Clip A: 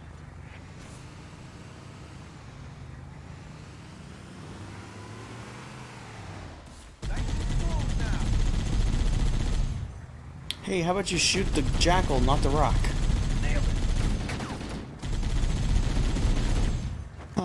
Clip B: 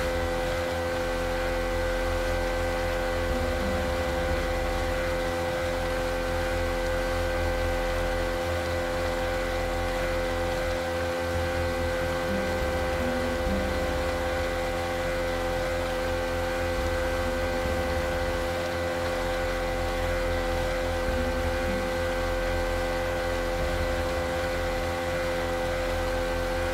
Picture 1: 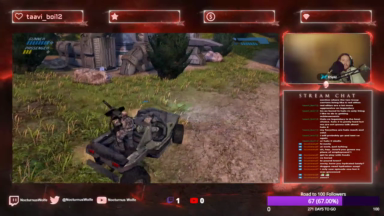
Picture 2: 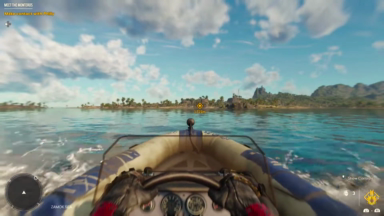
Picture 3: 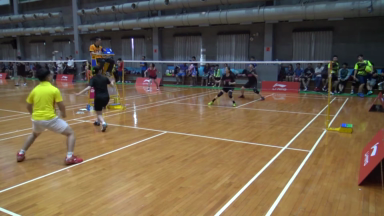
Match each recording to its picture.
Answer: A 1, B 2